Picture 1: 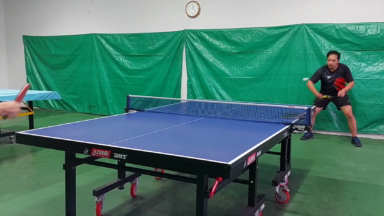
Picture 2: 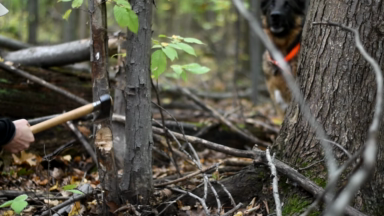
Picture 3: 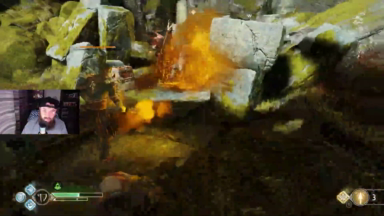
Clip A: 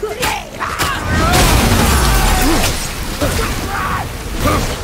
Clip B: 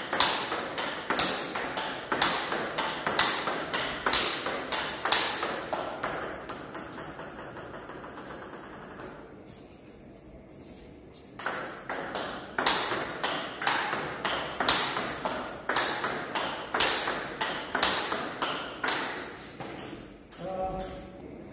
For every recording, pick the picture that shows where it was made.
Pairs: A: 3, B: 1